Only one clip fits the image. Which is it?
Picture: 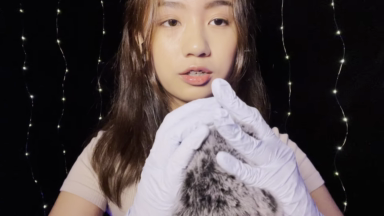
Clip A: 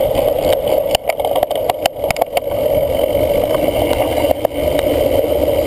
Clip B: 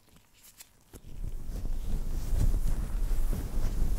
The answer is B